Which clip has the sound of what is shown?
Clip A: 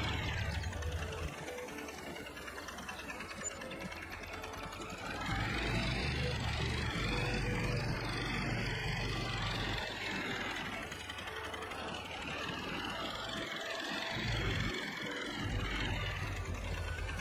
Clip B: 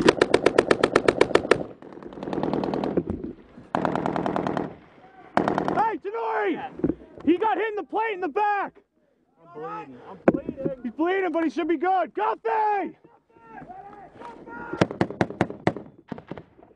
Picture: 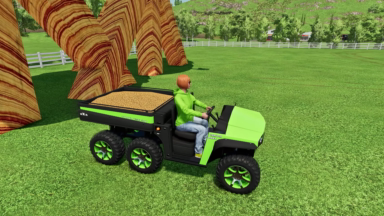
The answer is A